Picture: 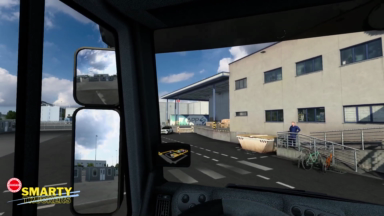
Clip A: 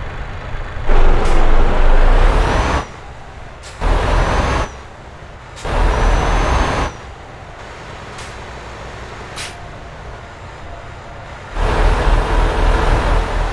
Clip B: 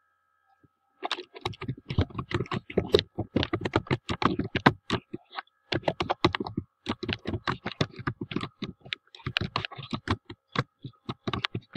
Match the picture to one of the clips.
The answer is A